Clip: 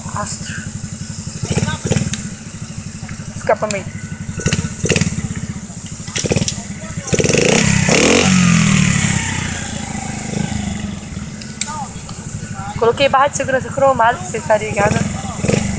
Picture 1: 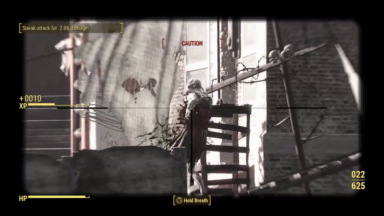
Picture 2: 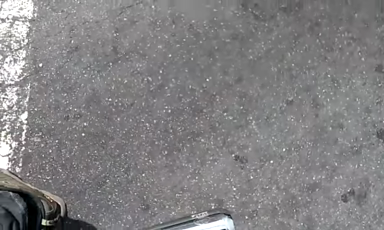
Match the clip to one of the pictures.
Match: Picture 2